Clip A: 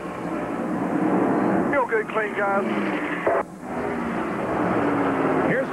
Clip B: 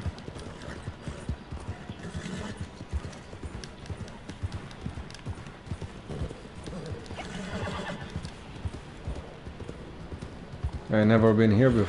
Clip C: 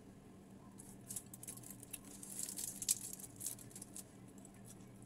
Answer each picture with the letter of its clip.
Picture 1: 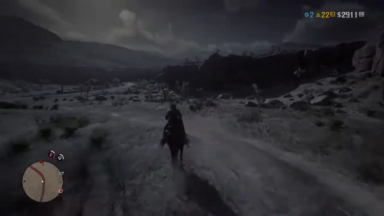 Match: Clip B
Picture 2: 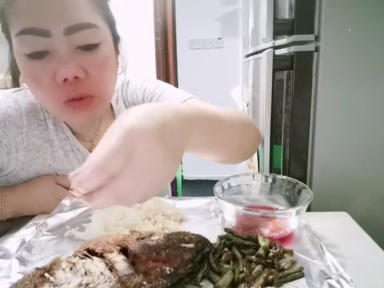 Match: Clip C